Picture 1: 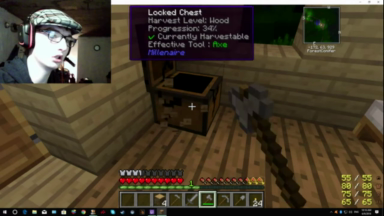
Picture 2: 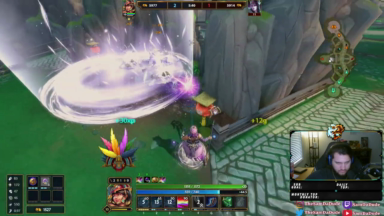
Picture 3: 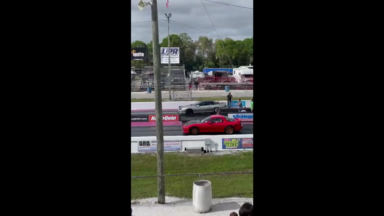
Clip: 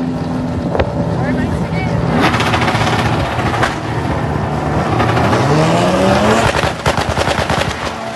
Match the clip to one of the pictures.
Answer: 3